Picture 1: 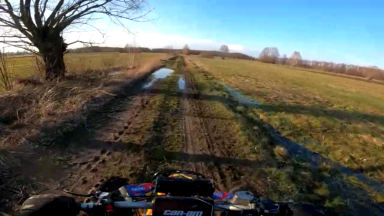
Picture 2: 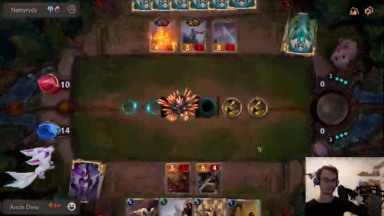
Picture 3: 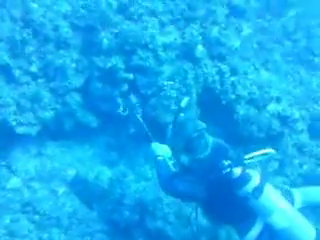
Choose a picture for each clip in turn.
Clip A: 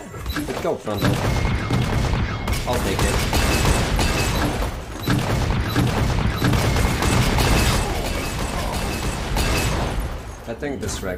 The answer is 2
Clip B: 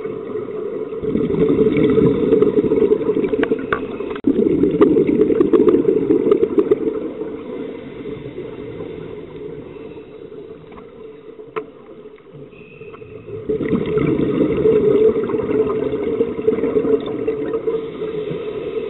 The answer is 3